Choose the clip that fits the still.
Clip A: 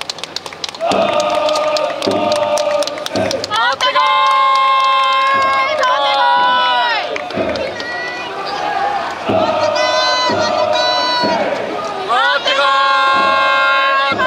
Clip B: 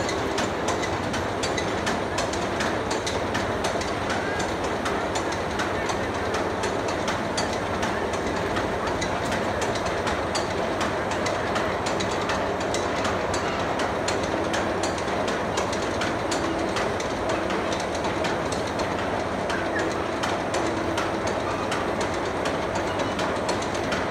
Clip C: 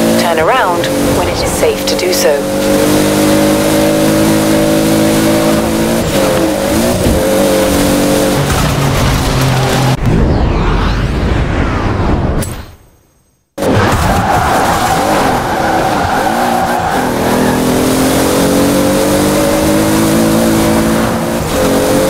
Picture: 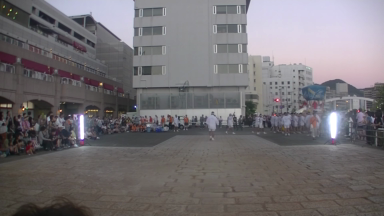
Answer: A